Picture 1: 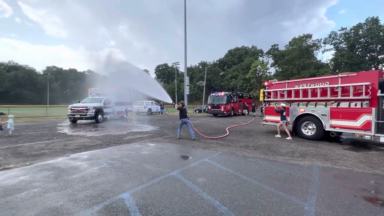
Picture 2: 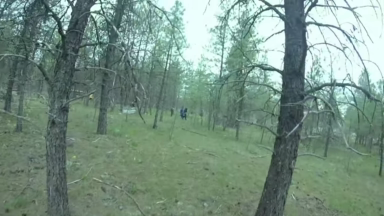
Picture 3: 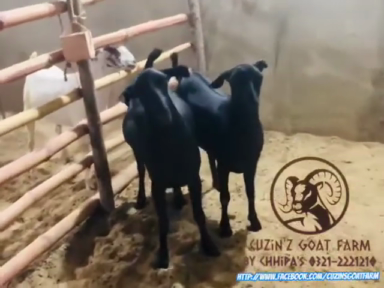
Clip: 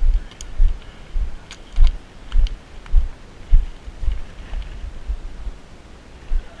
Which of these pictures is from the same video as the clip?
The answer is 2